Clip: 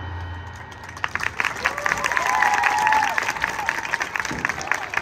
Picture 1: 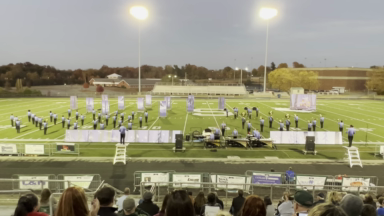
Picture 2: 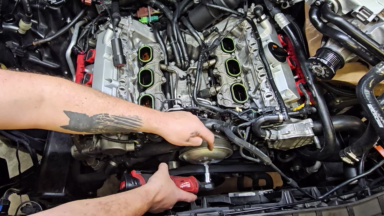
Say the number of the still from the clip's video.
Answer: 1